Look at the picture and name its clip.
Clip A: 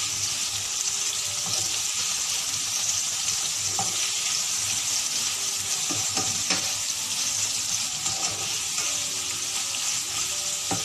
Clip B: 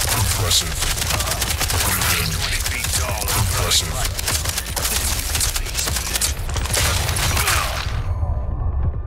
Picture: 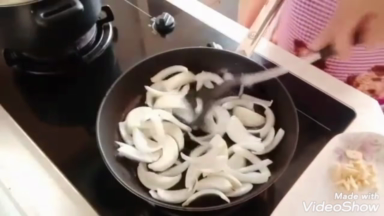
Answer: A